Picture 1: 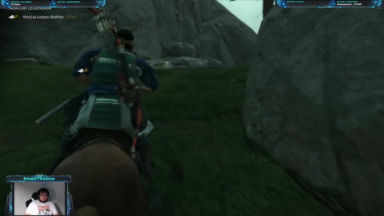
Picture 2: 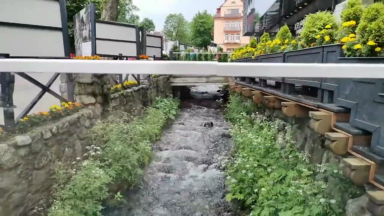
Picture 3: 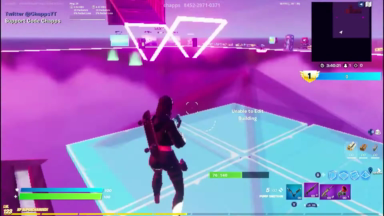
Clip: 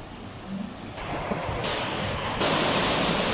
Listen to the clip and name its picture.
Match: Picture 2